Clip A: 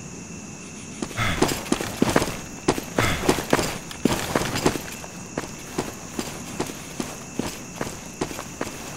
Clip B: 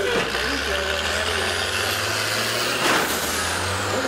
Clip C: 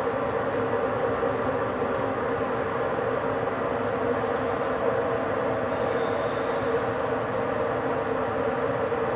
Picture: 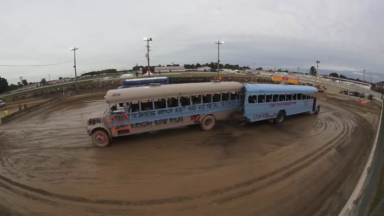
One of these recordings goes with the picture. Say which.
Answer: B